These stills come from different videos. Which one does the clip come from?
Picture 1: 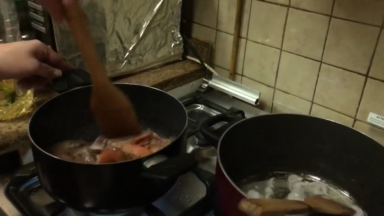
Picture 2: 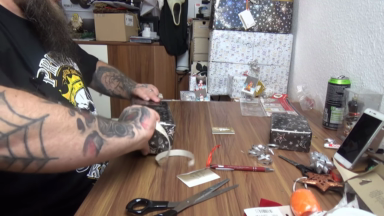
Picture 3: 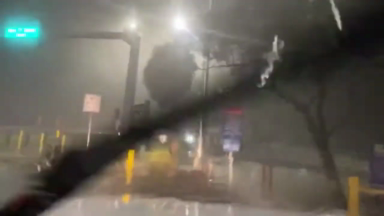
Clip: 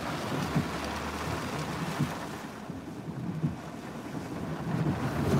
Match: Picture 3